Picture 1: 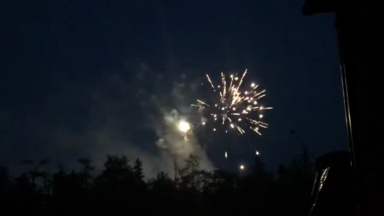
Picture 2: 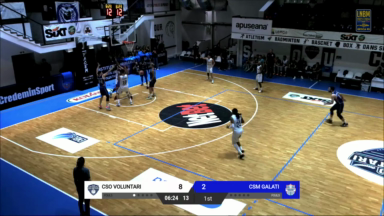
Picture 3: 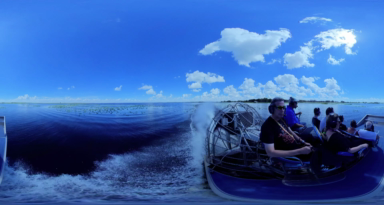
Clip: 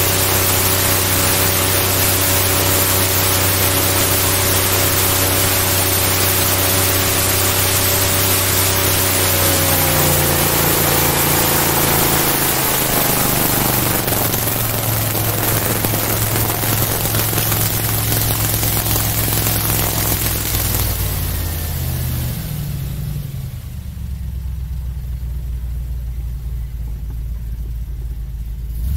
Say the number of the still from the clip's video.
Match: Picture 3